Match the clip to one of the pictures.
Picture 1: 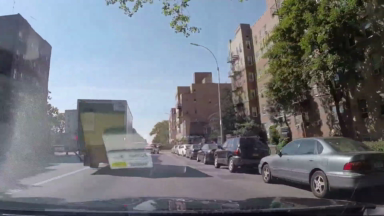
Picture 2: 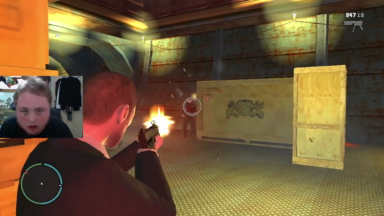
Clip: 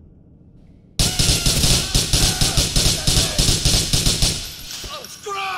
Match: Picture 2